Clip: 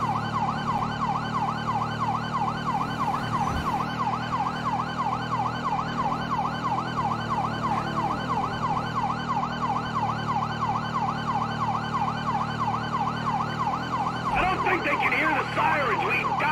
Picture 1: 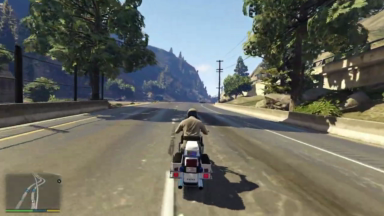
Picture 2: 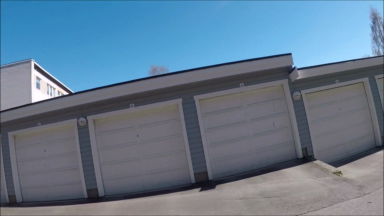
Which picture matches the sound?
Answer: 1